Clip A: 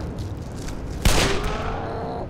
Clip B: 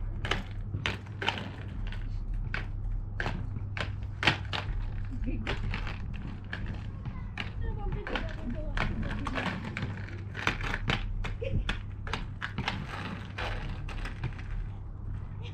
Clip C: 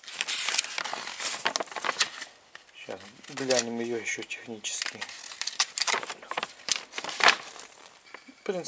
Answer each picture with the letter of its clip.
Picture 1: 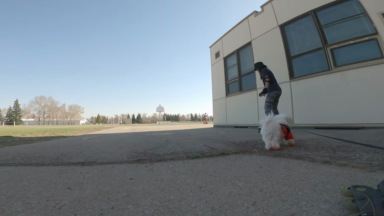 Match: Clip B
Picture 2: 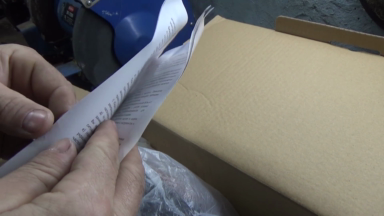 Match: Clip C